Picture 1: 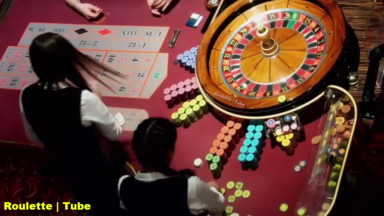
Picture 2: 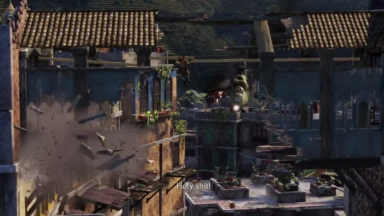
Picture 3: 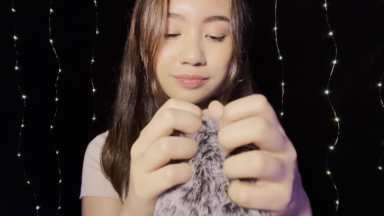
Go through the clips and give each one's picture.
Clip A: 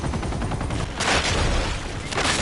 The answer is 2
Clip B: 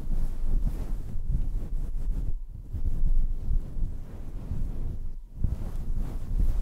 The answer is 3